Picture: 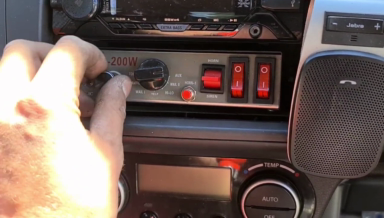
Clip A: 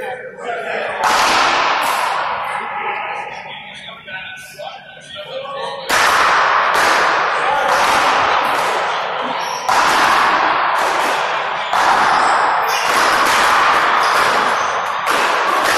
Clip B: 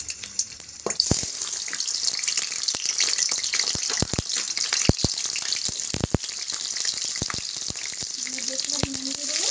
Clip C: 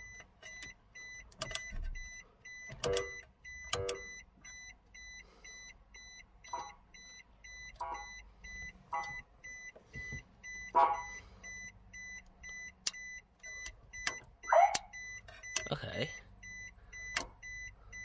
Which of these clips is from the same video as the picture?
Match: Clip C